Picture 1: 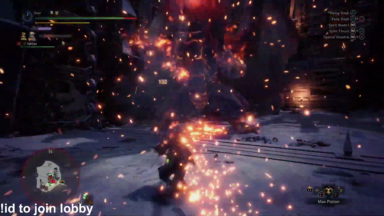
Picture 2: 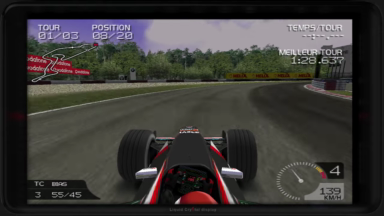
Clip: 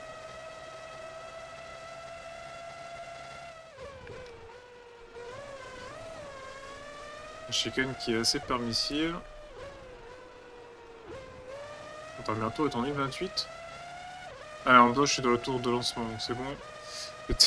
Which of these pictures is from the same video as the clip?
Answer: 2